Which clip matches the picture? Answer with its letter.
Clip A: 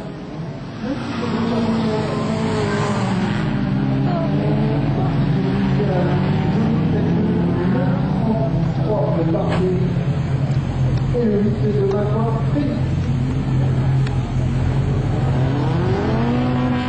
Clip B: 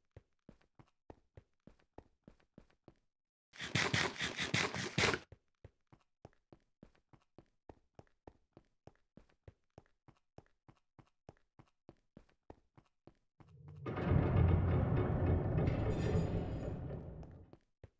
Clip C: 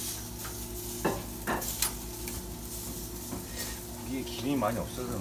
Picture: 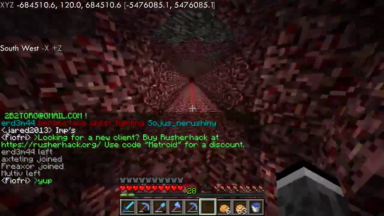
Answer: B